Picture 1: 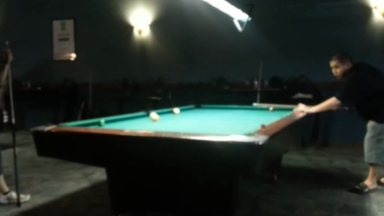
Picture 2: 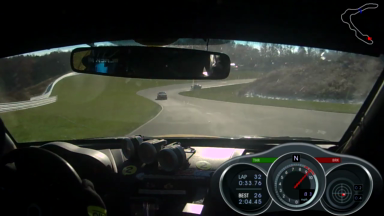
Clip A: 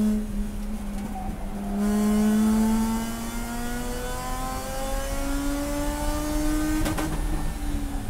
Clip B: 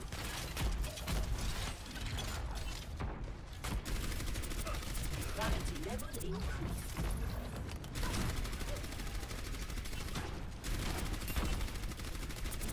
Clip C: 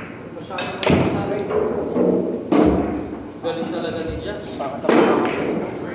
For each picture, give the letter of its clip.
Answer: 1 C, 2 A